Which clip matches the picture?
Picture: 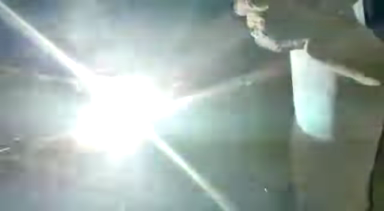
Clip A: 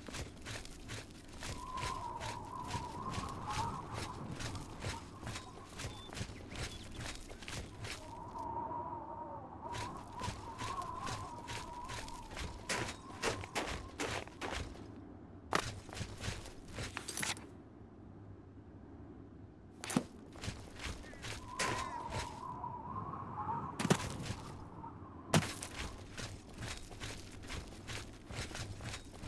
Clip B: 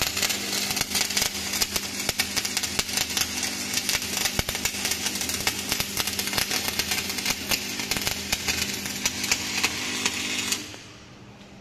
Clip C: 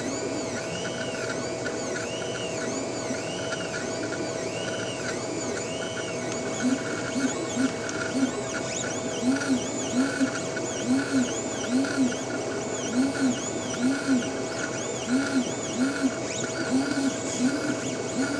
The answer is B